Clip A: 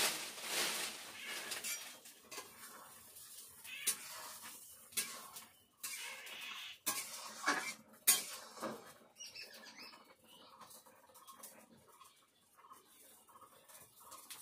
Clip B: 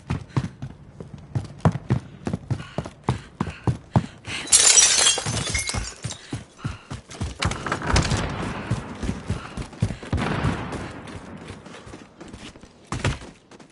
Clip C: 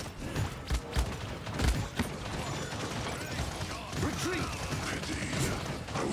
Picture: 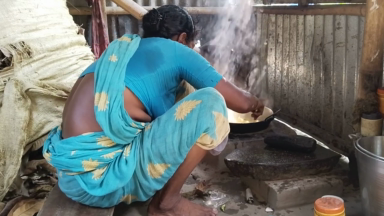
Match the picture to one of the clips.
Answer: A